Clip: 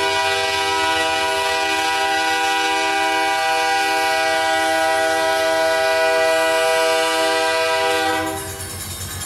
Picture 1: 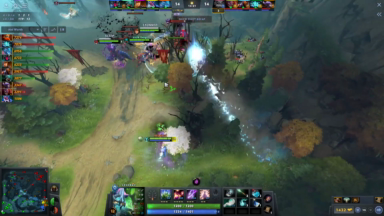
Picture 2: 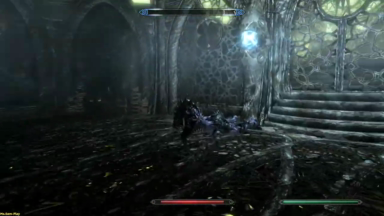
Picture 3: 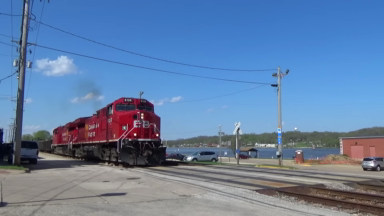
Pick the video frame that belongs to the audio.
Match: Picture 3